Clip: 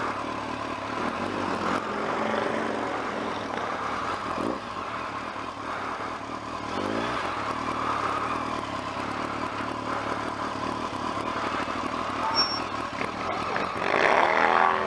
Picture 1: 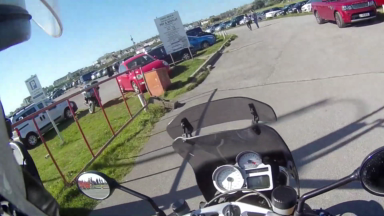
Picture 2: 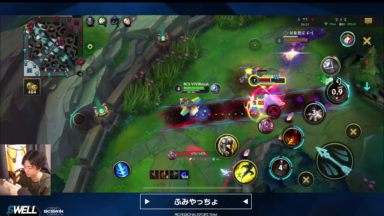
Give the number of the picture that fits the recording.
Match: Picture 1